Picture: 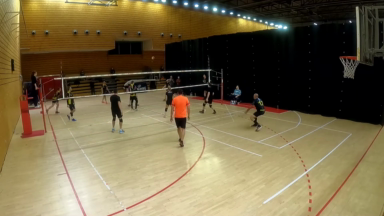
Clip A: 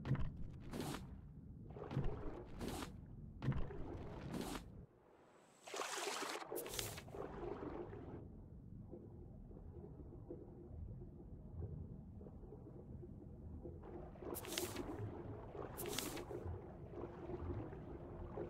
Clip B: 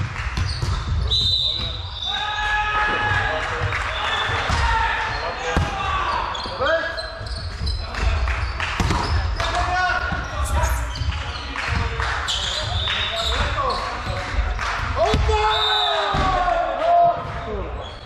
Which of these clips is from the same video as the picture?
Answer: B